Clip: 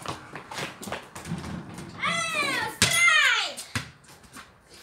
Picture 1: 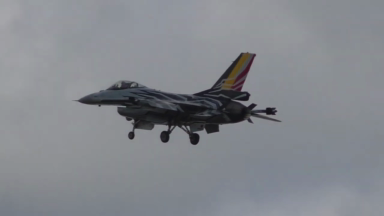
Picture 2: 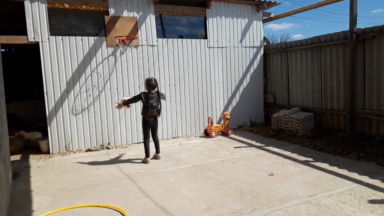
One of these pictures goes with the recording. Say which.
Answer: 2